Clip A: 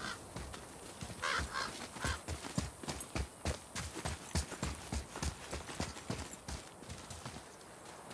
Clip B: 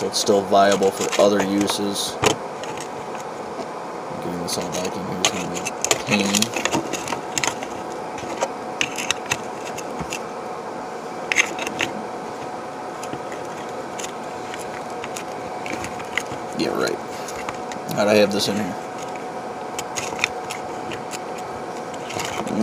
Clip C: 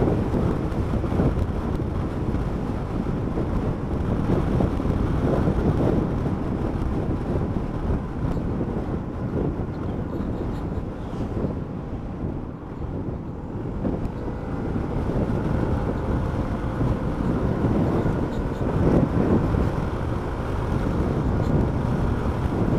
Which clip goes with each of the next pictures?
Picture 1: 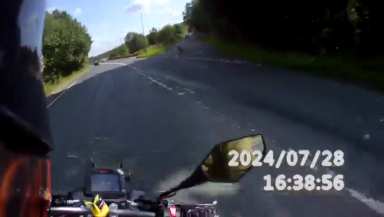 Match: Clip C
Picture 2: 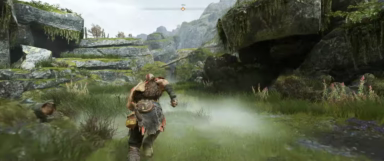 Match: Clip A